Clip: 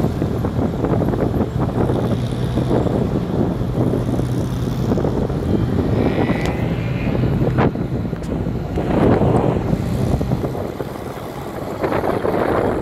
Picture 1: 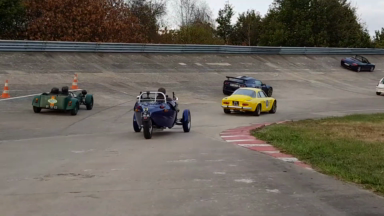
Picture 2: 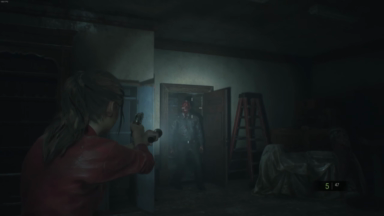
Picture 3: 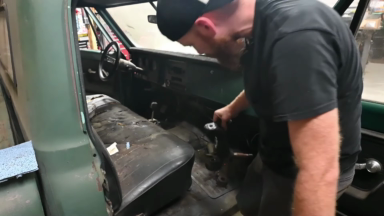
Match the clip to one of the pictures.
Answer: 1